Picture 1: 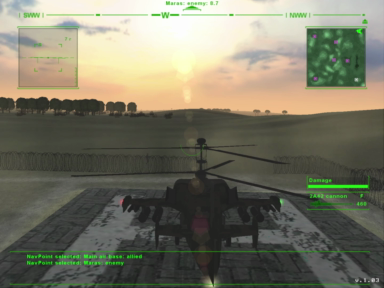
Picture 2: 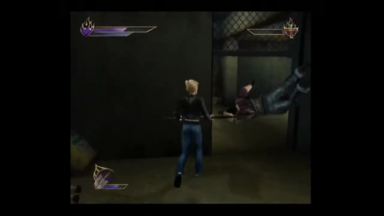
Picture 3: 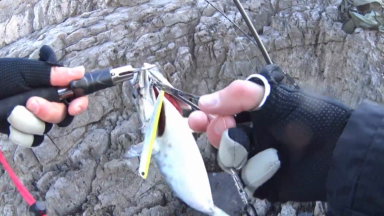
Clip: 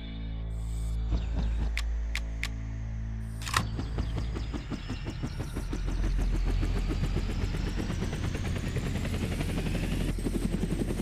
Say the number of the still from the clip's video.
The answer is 1